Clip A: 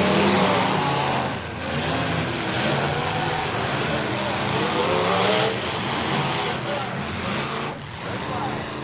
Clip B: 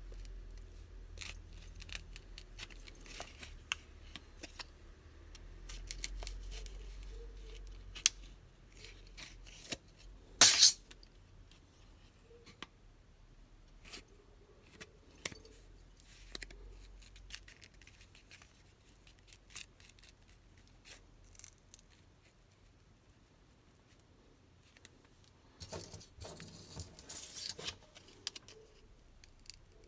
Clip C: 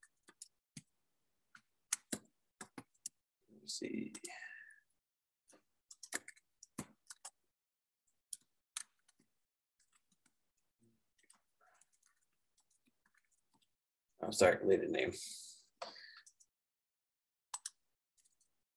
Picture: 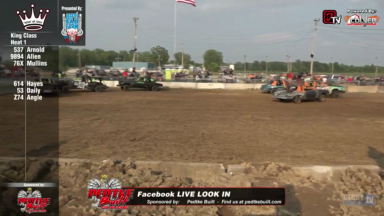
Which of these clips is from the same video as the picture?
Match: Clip A